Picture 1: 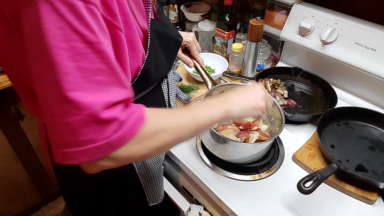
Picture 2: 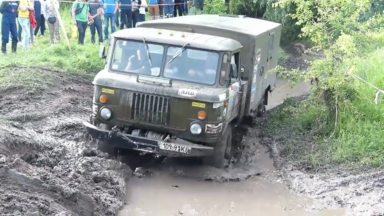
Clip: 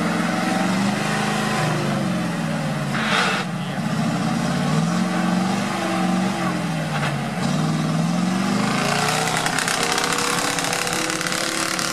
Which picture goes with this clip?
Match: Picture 2